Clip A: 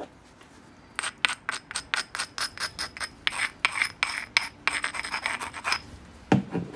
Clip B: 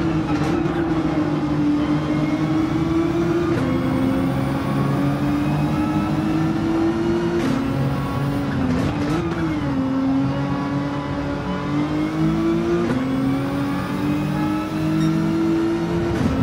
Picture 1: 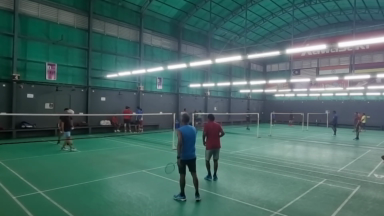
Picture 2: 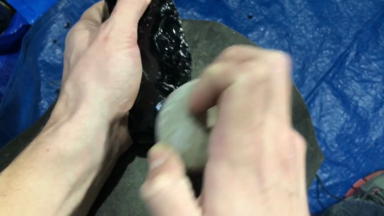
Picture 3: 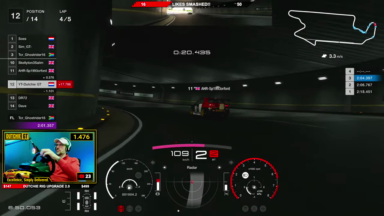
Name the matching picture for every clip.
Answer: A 2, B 3